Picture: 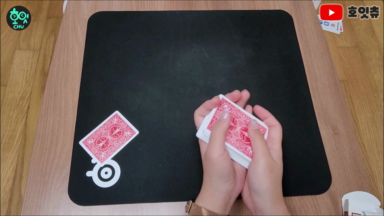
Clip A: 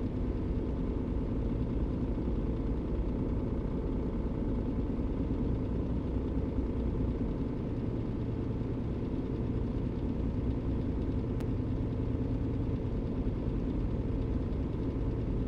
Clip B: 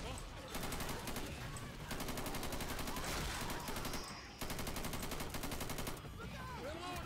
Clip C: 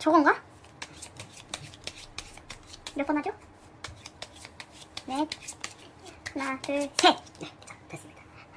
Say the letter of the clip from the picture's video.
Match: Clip C